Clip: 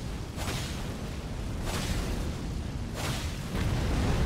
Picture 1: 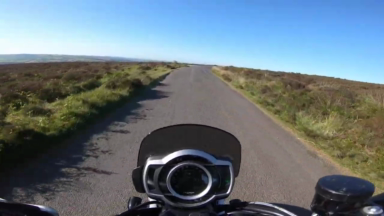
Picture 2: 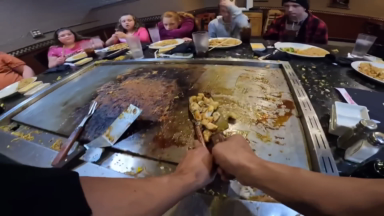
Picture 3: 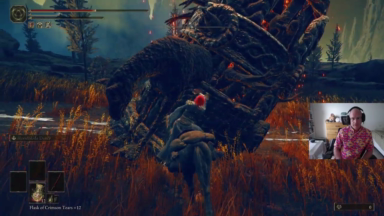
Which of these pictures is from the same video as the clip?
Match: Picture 3